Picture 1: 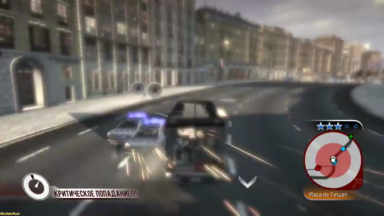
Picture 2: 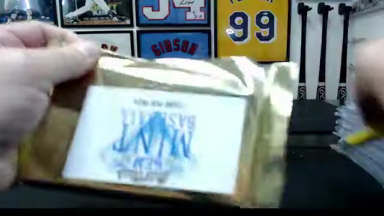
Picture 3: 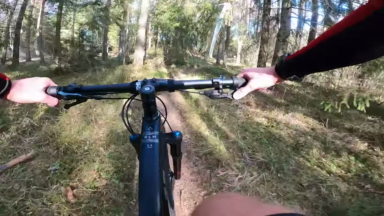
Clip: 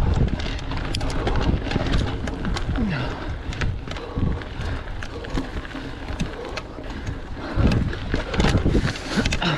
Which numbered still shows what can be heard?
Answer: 3